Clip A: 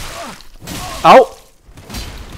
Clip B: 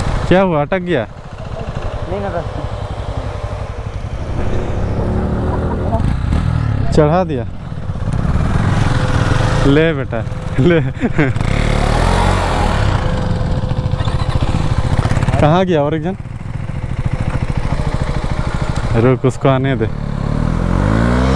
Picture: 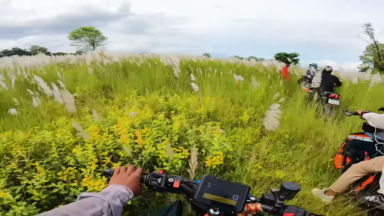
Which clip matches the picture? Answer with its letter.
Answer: B